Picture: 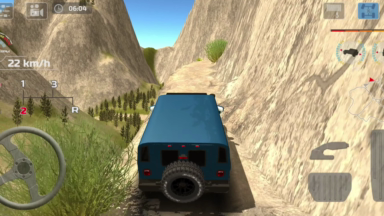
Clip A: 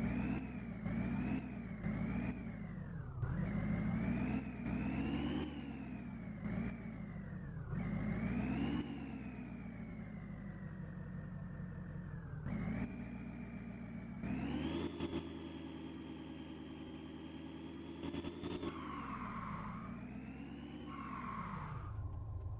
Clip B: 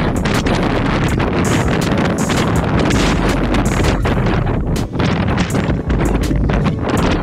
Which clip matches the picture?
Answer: A